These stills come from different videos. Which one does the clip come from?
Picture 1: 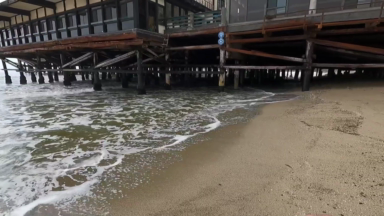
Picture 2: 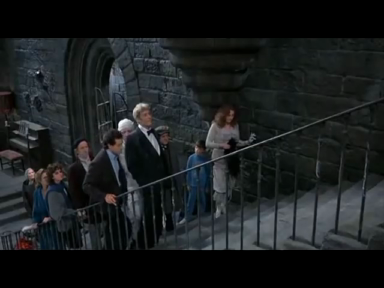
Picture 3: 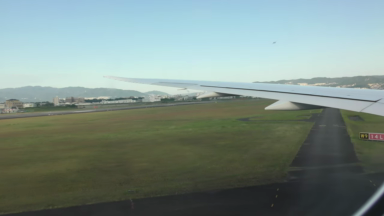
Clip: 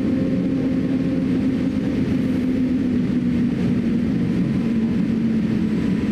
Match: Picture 3